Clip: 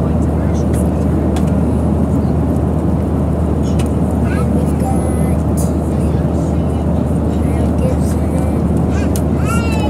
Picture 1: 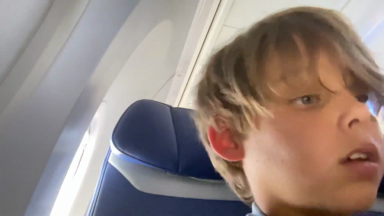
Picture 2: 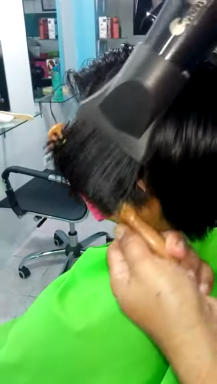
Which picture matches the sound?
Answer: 1